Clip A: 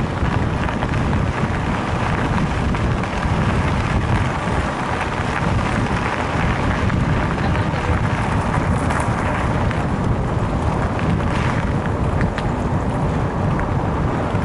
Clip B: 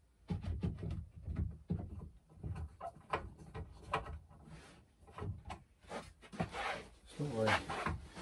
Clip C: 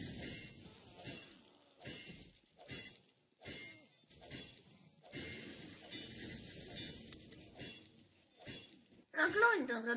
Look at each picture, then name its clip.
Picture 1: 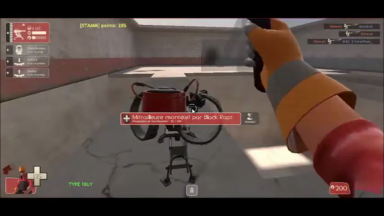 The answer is C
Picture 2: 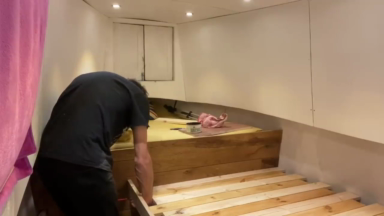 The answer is B